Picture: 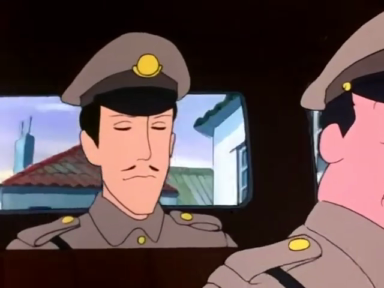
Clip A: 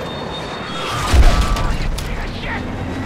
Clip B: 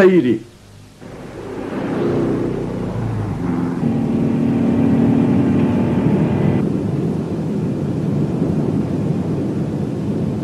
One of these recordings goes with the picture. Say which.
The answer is B